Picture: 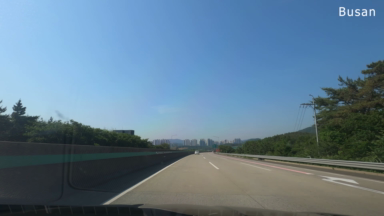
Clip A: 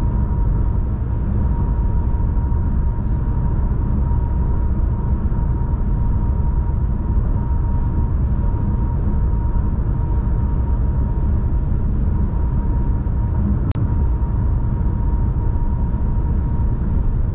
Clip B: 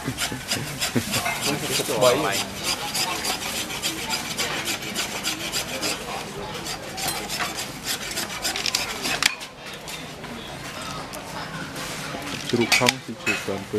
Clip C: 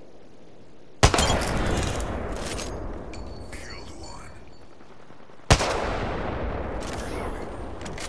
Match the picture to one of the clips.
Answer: A